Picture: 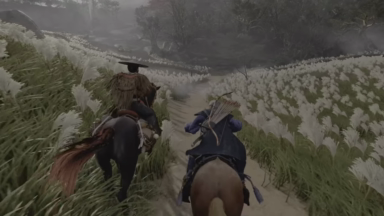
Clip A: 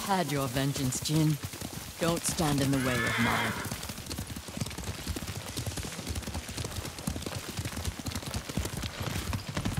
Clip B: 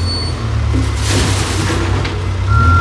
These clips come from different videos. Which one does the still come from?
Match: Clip A